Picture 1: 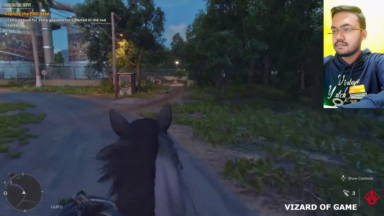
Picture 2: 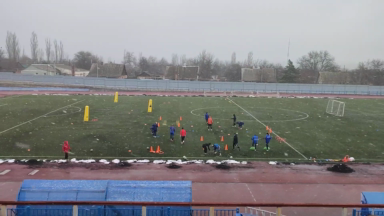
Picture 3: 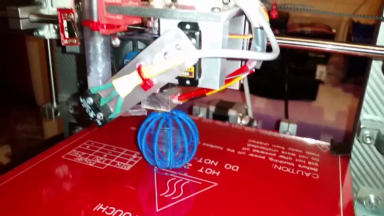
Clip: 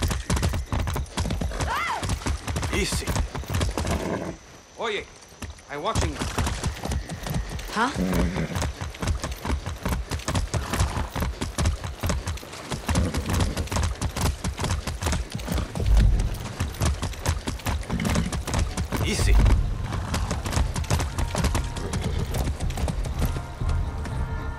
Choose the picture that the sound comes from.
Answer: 1